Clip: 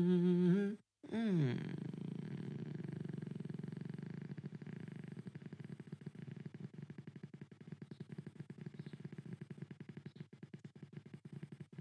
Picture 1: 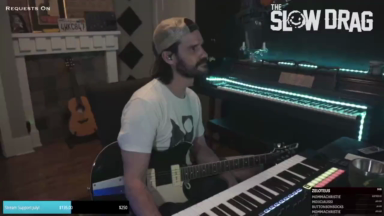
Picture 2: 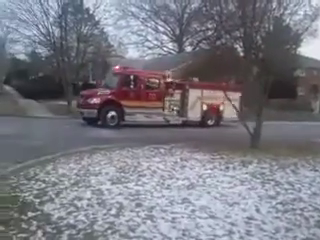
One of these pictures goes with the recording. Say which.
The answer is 1